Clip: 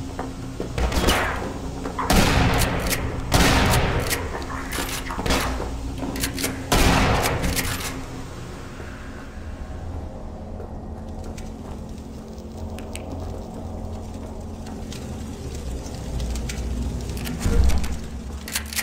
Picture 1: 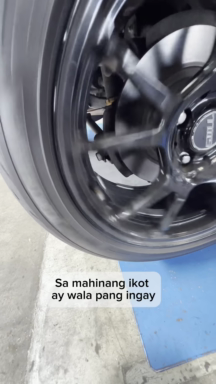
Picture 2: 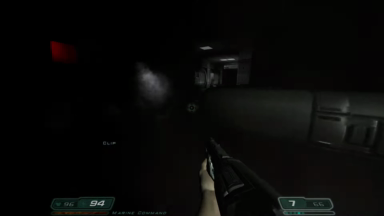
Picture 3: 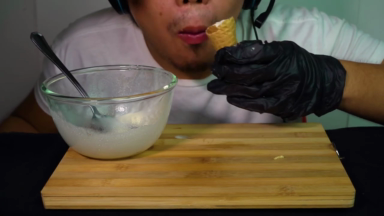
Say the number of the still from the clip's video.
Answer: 2